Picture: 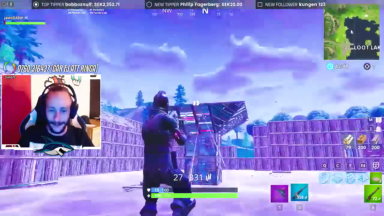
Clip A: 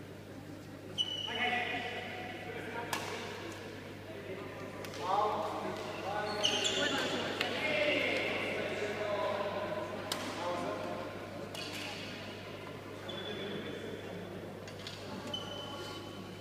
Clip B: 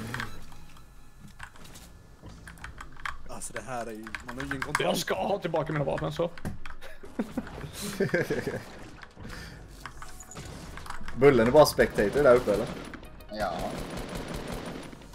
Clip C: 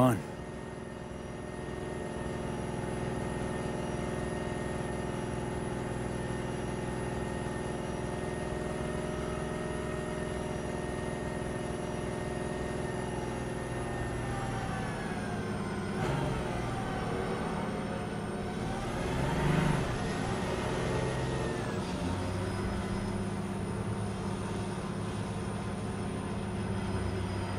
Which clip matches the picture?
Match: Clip B